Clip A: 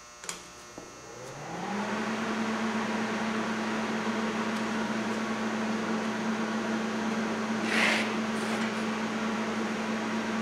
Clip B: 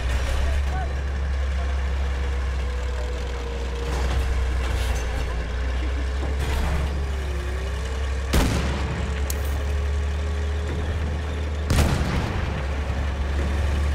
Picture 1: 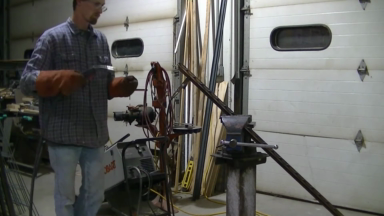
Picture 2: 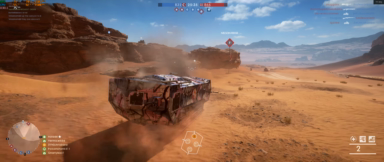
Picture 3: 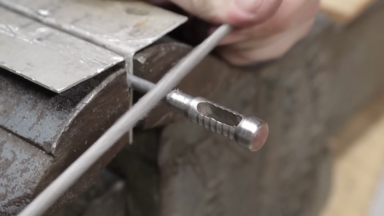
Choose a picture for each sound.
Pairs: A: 1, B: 2